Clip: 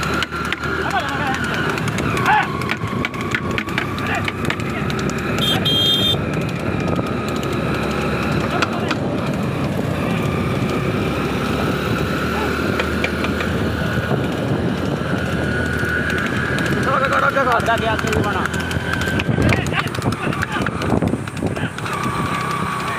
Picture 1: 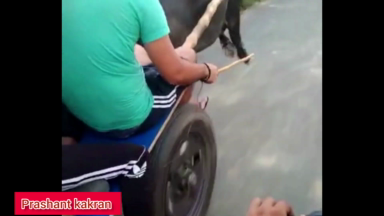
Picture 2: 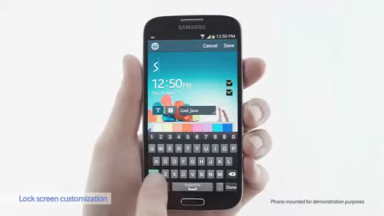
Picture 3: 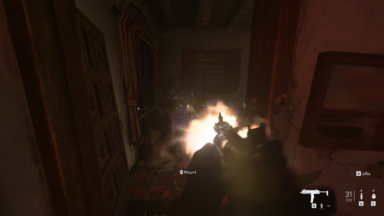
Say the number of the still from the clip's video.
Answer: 1